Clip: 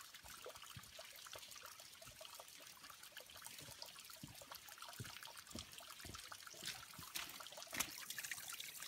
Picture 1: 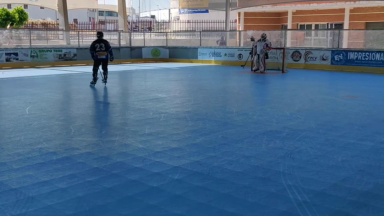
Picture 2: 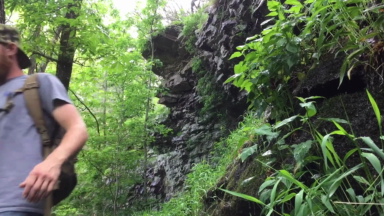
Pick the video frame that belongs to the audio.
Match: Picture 2